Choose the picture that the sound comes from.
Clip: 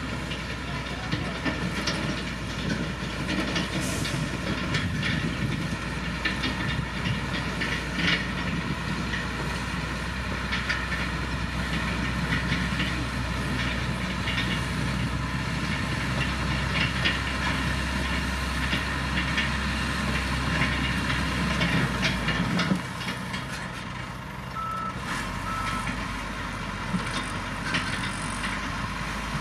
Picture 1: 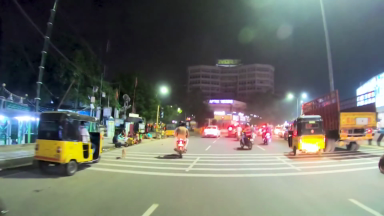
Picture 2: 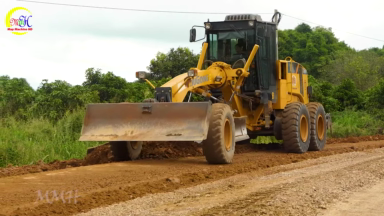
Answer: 2